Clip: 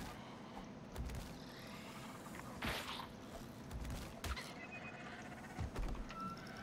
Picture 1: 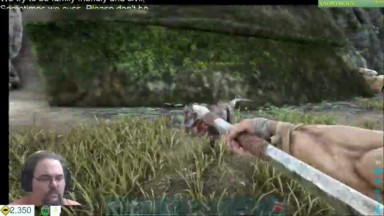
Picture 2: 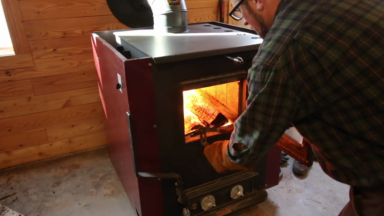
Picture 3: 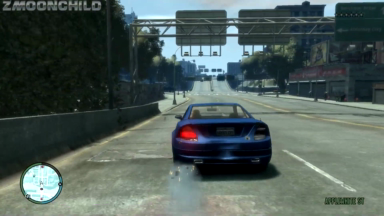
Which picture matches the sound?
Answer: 1